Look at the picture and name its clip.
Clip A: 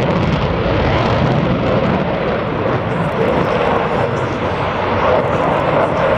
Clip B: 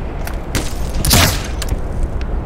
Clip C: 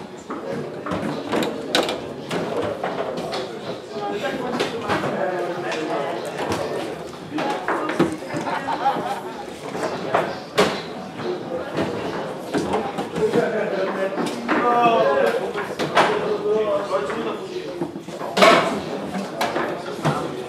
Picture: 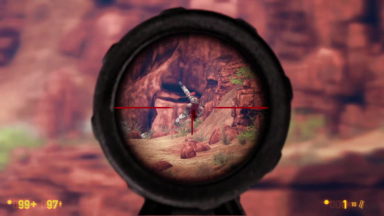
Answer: B